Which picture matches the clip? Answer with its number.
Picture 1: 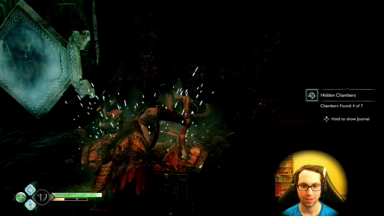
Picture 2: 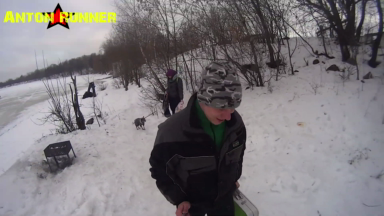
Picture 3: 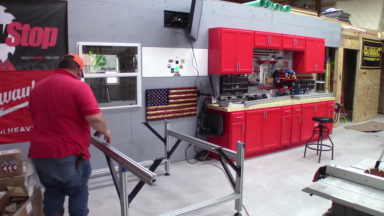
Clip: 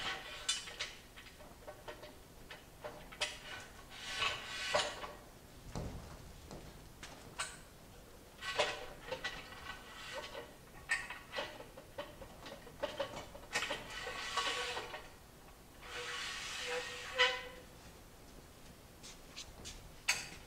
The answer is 3